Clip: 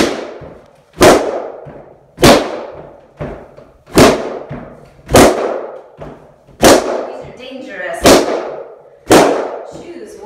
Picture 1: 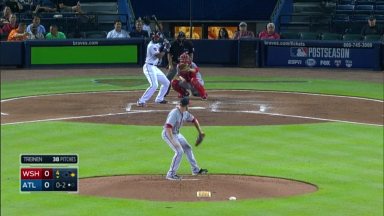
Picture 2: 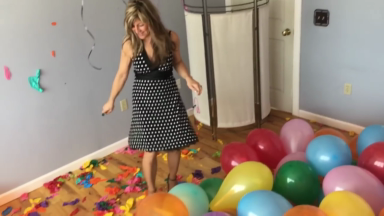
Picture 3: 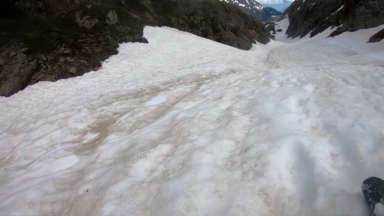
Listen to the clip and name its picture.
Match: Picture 2